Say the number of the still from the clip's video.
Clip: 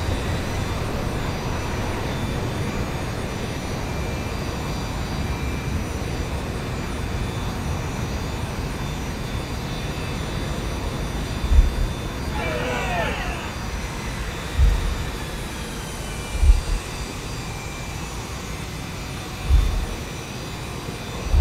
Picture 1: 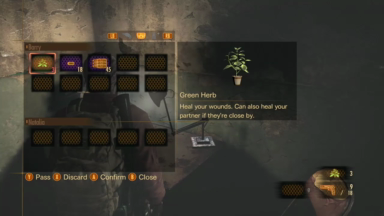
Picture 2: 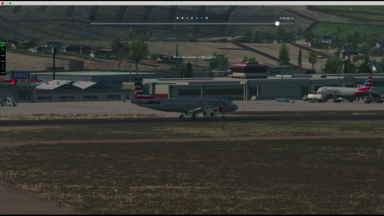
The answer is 2